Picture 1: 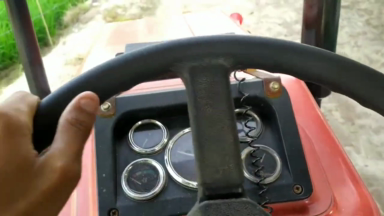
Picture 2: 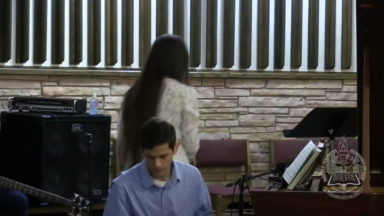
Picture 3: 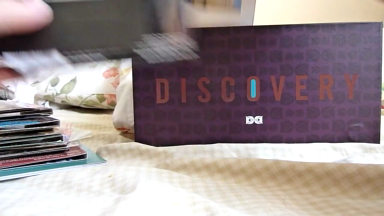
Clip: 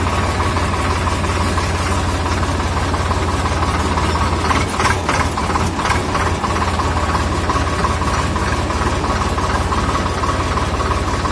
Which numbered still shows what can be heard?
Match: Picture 1